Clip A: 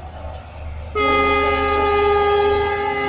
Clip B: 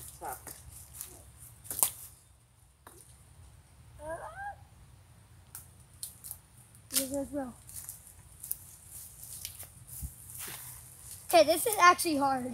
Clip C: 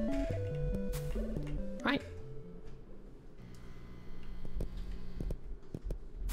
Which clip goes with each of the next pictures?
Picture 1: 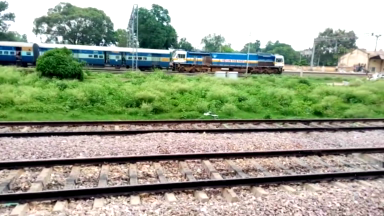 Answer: A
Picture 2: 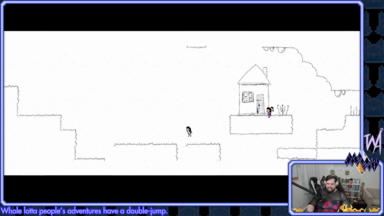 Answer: C